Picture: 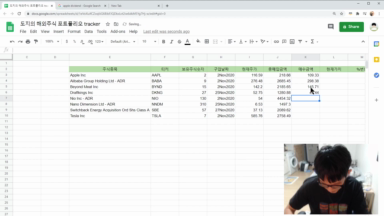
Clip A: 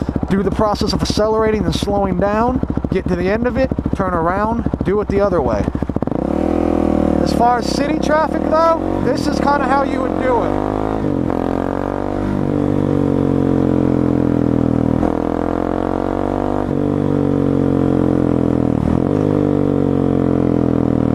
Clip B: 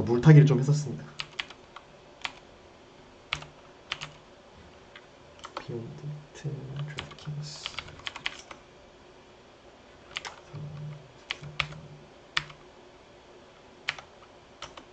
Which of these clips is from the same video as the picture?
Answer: B